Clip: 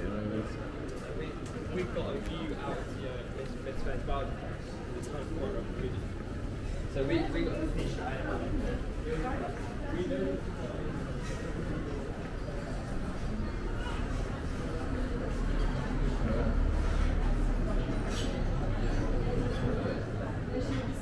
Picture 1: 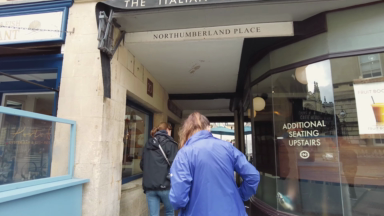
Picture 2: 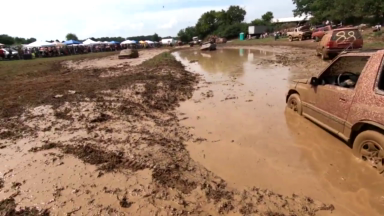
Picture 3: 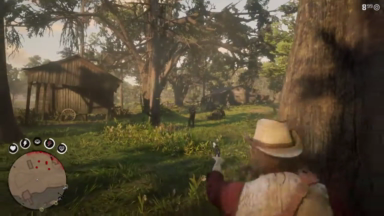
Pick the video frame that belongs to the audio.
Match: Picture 1